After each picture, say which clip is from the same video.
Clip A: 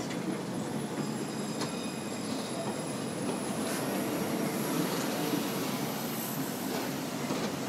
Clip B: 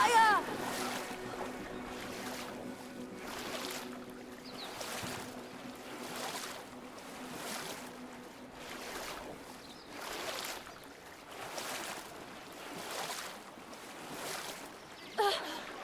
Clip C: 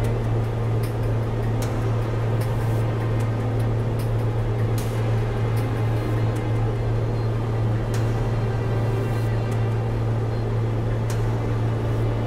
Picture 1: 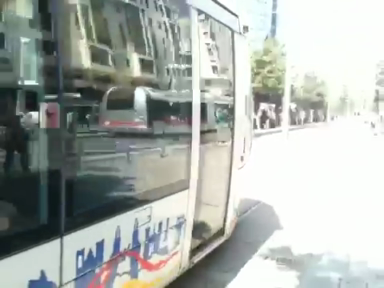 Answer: A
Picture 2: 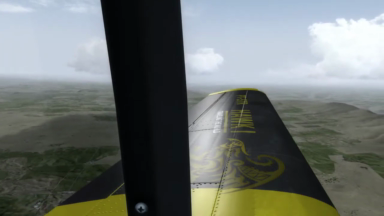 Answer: C